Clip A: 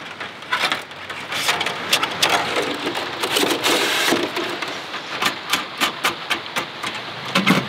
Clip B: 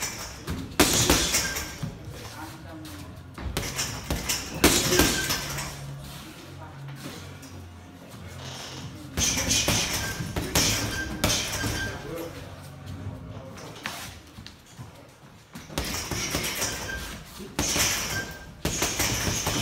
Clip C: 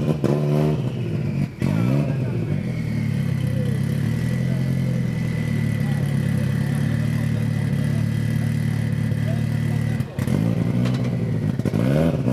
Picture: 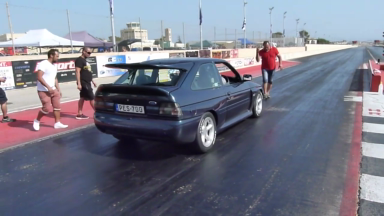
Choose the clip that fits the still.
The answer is C